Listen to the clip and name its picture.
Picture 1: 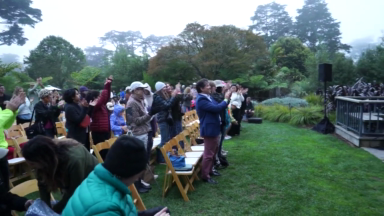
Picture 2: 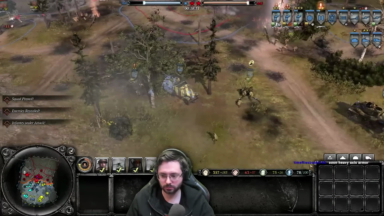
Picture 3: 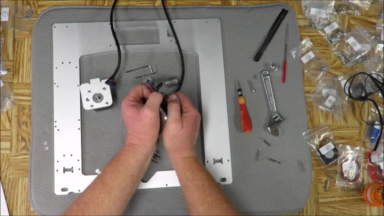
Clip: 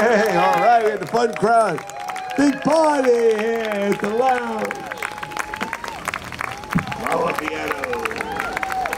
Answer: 1